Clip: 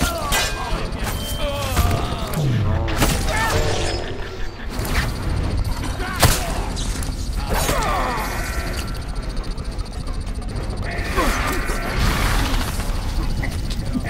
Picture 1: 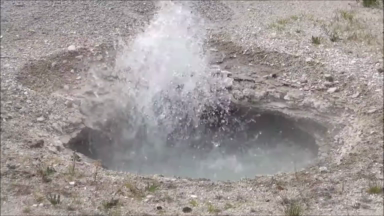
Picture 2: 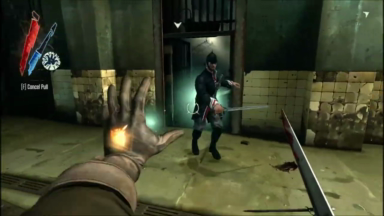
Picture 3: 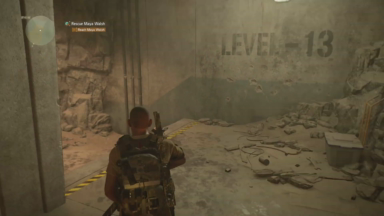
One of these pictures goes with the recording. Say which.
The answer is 2